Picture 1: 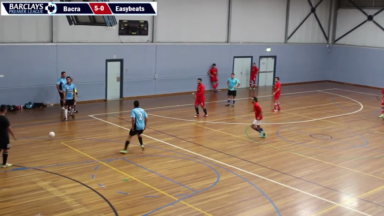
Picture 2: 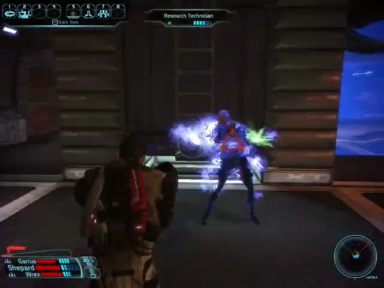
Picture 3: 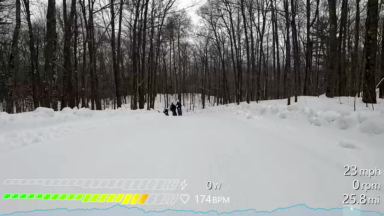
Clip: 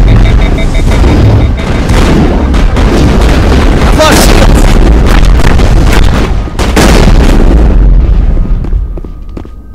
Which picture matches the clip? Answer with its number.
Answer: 2